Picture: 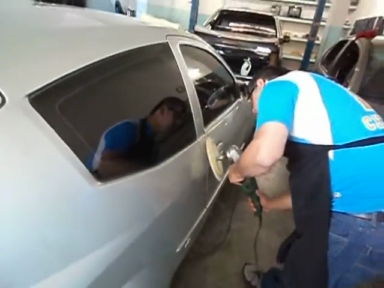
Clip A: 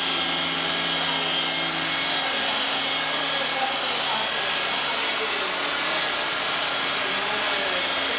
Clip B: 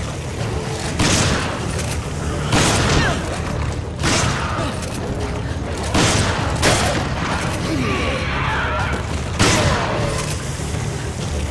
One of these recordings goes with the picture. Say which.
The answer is A